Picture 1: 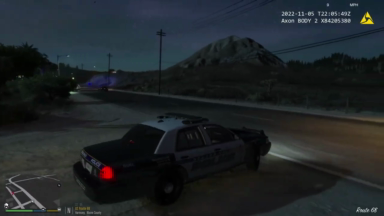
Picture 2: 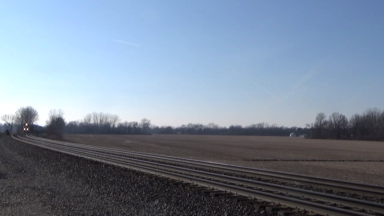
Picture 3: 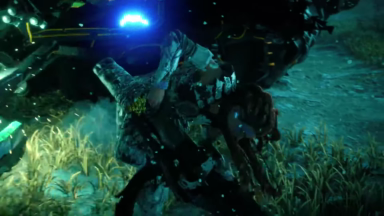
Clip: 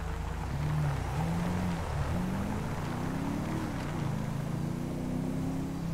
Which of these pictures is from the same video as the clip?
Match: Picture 1